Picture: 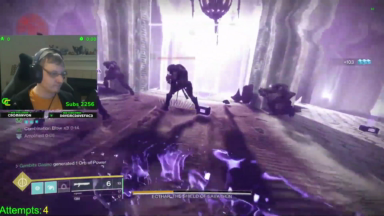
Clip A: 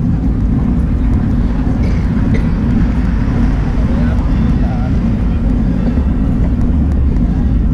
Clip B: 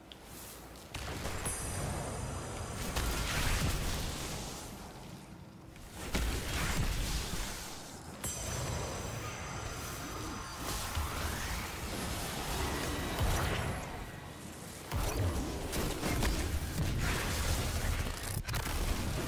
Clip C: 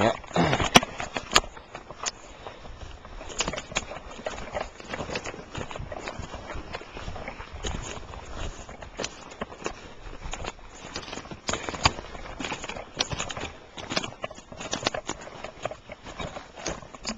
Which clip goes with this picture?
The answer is B